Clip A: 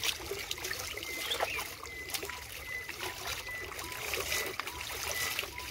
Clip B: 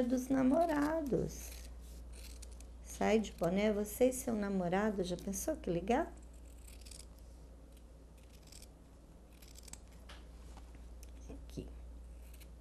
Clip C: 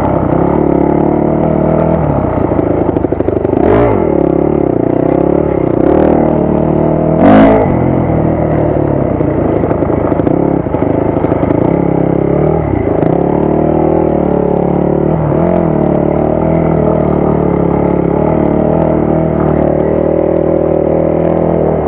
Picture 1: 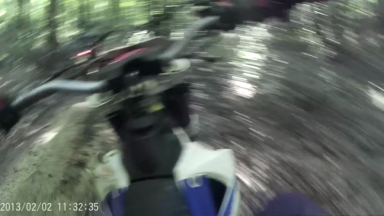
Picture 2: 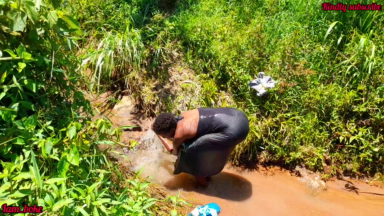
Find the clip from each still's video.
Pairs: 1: C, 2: A